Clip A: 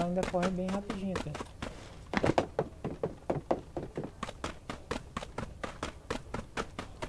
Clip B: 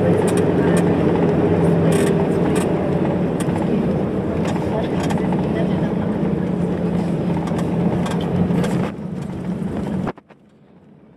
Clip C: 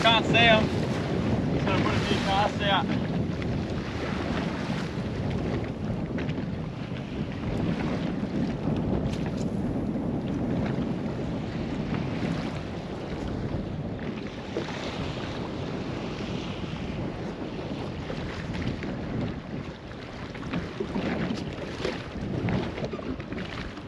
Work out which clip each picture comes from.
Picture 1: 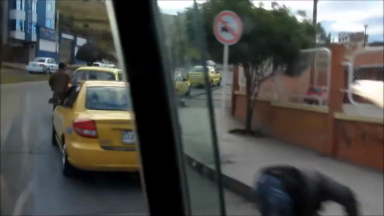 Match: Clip B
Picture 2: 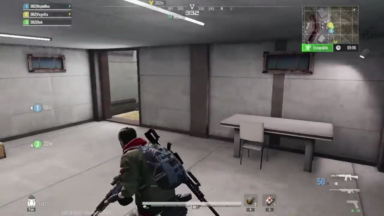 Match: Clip A